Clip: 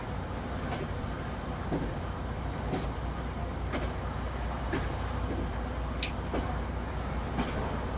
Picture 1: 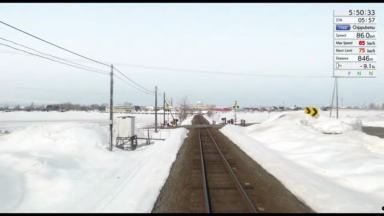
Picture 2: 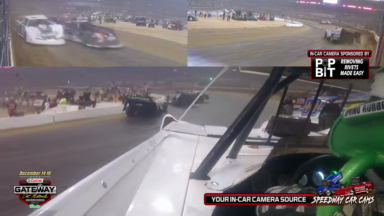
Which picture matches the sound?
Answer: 1